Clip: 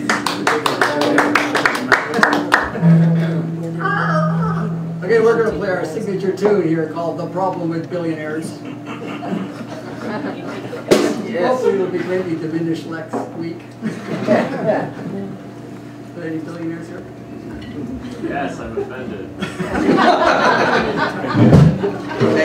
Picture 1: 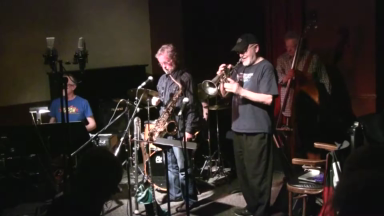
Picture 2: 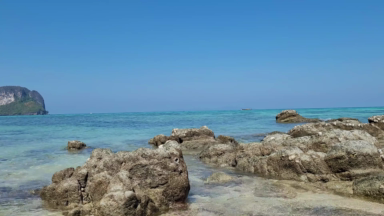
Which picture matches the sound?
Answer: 1